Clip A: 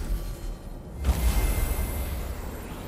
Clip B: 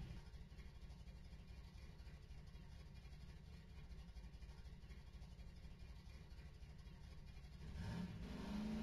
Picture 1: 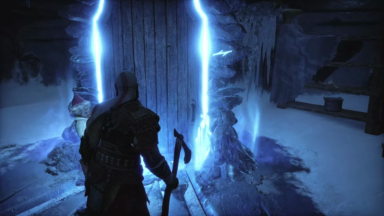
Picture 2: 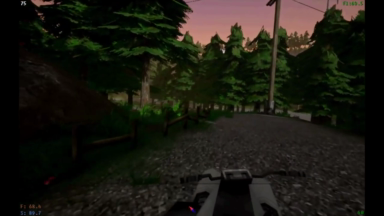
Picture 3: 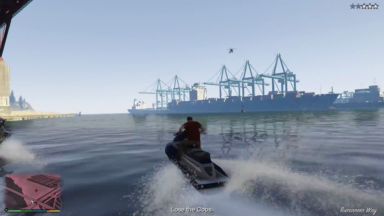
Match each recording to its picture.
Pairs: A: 1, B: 2